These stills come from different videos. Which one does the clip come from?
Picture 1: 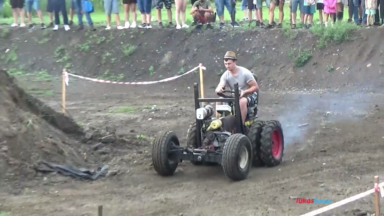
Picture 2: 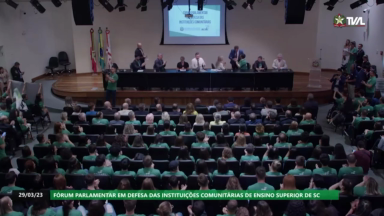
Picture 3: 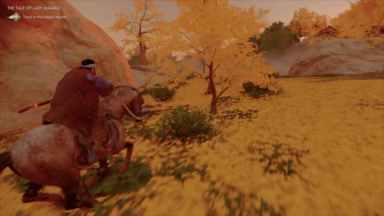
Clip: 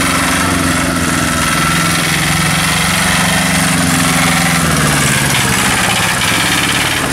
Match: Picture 1